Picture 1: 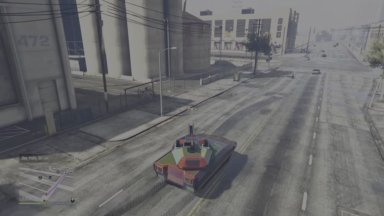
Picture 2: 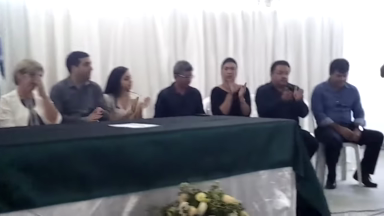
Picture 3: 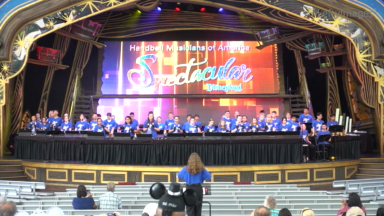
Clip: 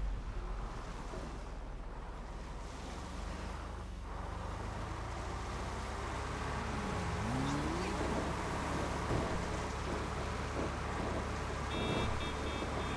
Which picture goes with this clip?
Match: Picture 1